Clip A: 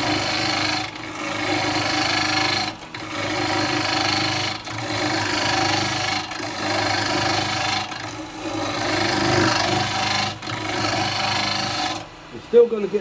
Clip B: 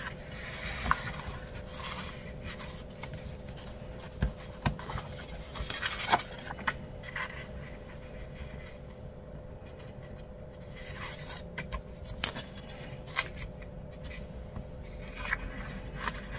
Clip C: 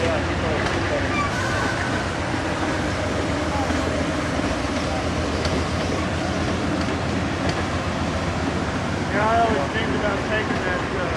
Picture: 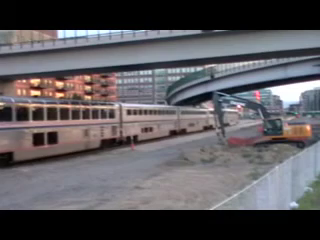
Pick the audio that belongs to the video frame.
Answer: C